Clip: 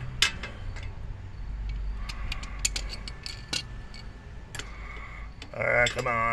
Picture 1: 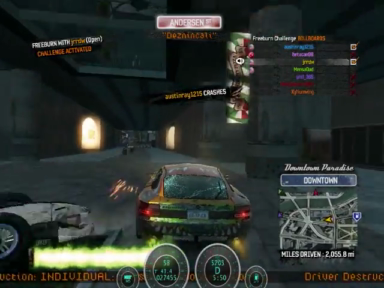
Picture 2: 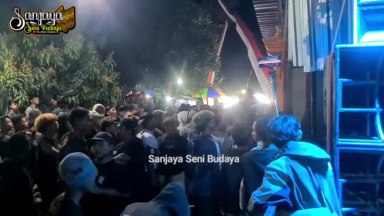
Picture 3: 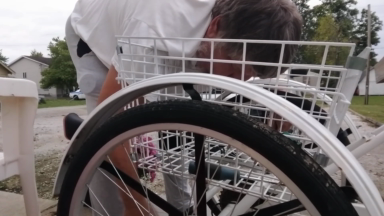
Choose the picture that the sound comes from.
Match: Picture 3